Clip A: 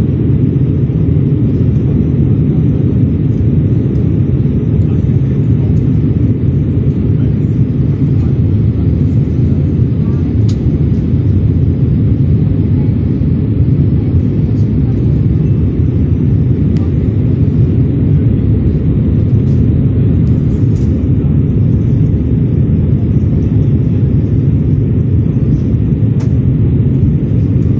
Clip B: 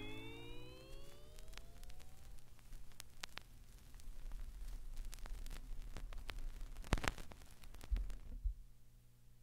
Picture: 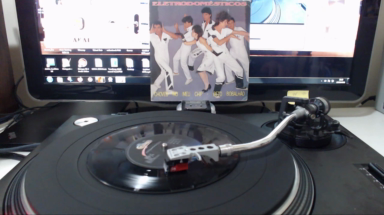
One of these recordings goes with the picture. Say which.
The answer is B